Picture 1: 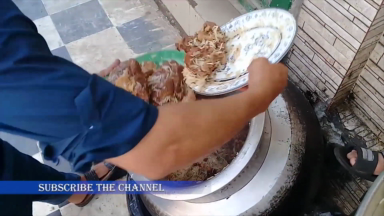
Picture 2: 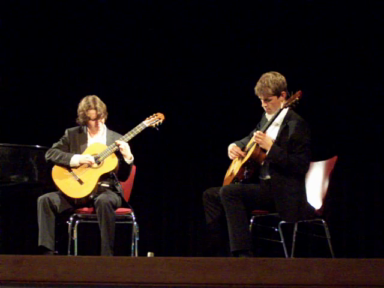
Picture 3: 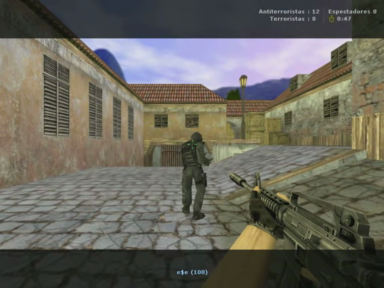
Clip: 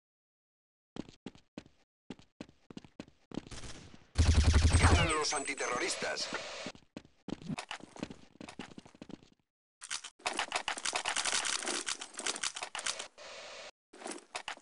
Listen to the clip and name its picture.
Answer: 3